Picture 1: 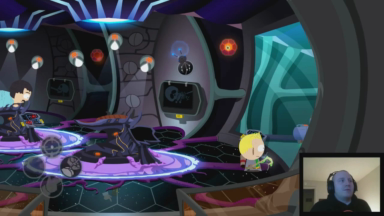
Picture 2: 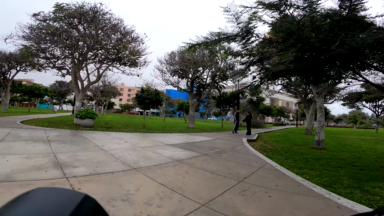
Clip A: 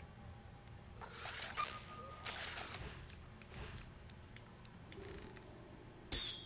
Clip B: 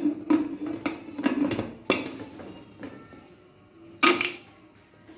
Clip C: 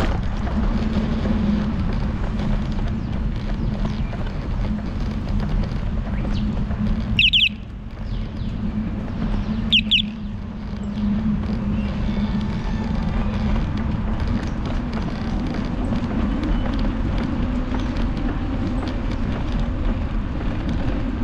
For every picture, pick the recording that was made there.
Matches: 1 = A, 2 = C